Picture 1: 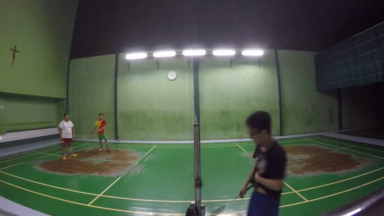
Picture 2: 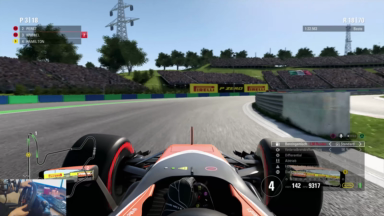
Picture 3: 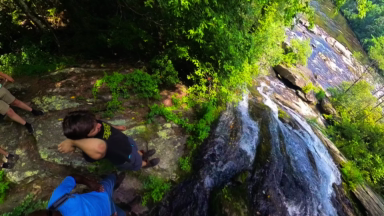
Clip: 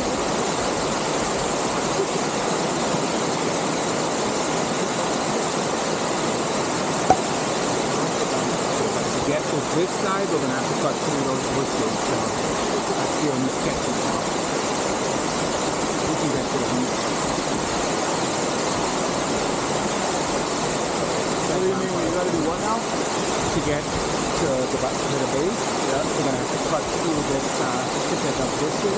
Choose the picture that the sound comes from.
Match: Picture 3